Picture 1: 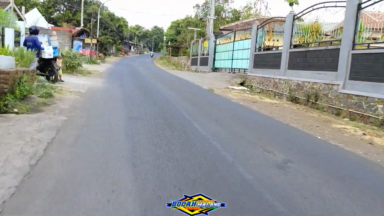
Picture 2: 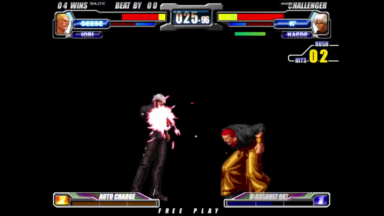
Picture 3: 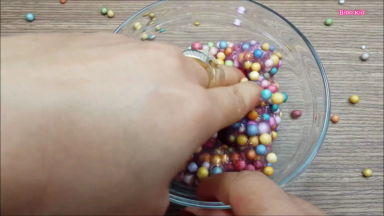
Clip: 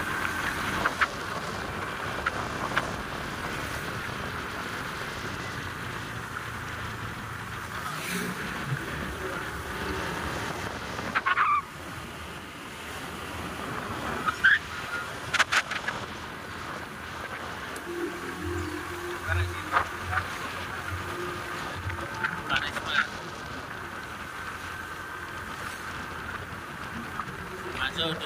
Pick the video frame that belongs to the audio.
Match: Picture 1